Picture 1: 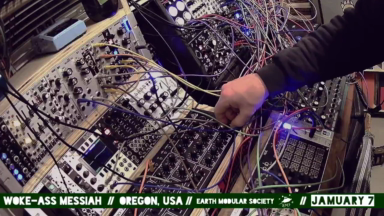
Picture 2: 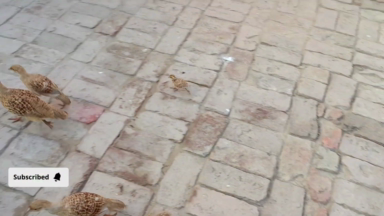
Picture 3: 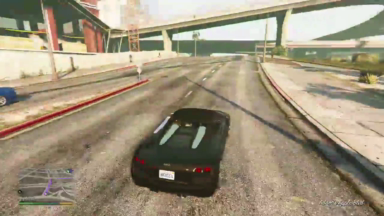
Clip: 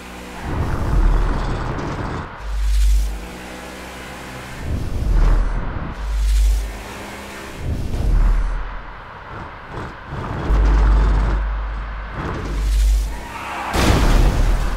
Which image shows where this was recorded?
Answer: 3